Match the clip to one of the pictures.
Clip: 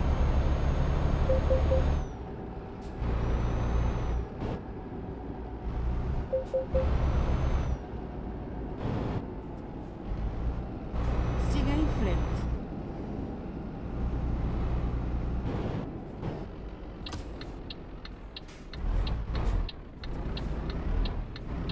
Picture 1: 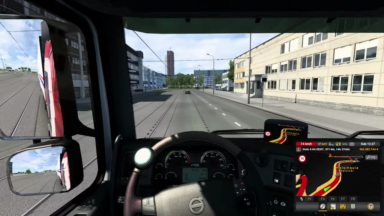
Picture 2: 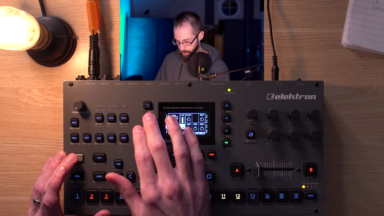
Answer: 1